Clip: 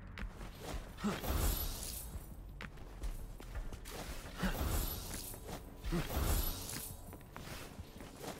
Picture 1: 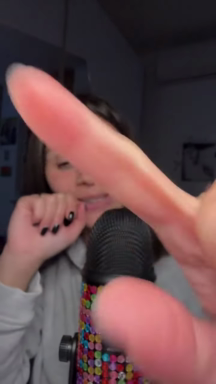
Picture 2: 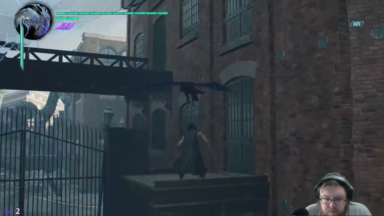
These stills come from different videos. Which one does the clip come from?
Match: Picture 2